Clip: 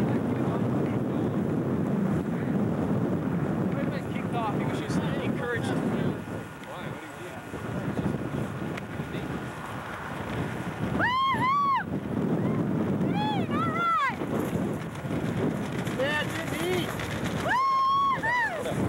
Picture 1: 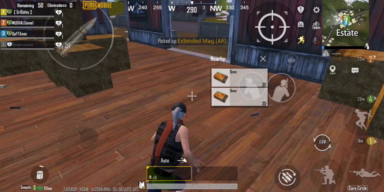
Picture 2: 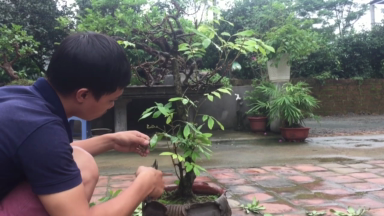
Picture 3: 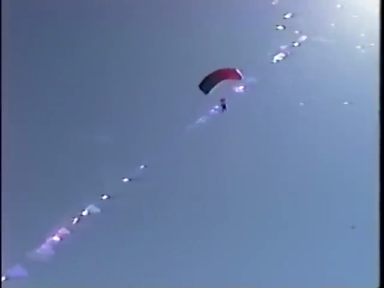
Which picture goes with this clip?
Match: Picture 3